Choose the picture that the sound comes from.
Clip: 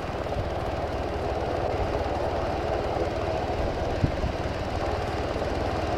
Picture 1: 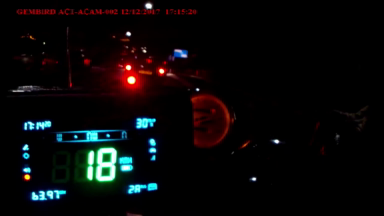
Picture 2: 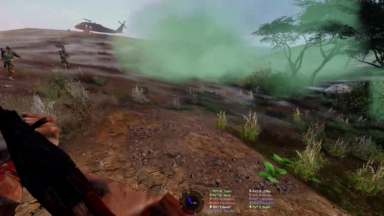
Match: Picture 2